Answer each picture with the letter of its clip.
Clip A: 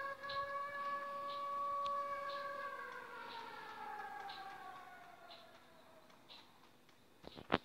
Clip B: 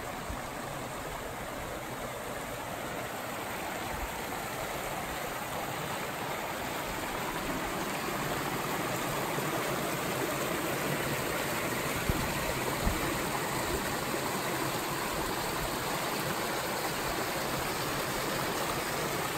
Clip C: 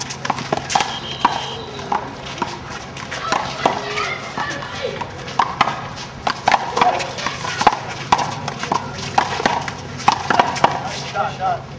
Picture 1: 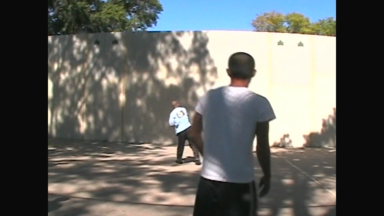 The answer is C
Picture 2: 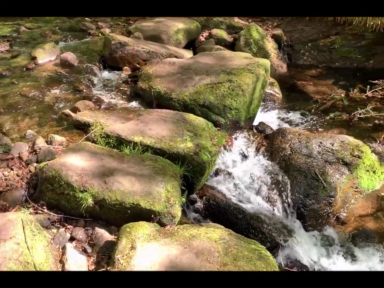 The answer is B